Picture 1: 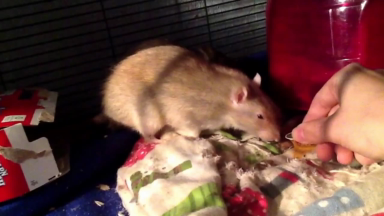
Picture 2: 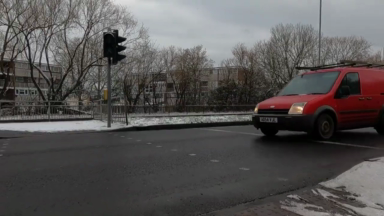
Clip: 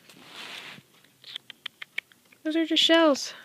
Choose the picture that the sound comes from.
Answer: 1